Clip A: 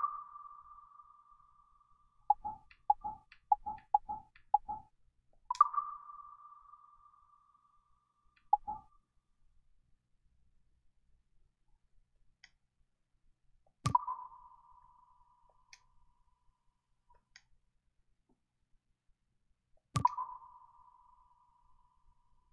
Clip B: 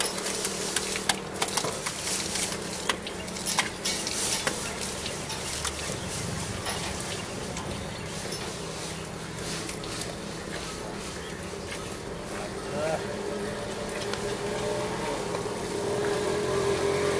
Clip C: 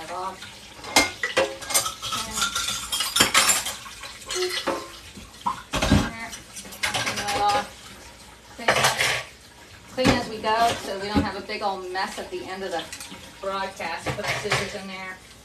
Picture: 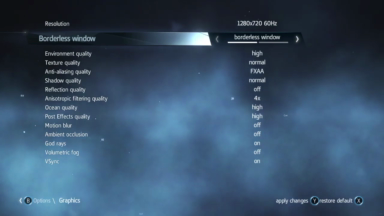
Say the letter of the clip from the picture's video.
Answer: A